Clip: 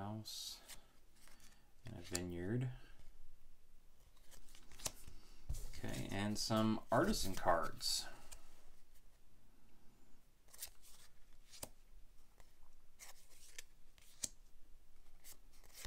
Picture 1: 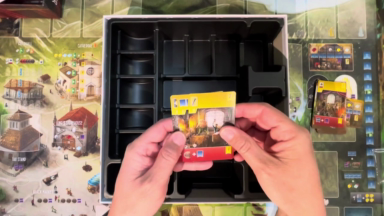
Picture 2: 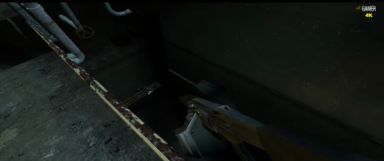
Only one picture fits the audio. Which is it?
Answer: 1